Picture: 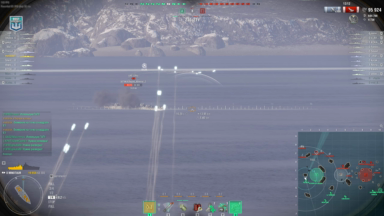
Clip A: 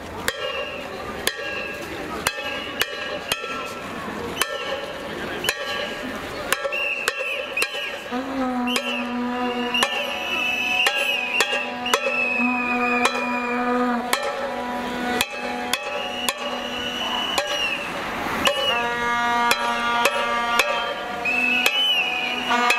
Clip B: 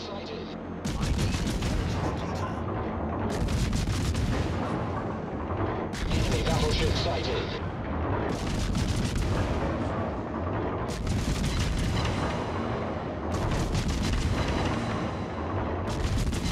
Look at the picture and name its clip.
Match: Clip B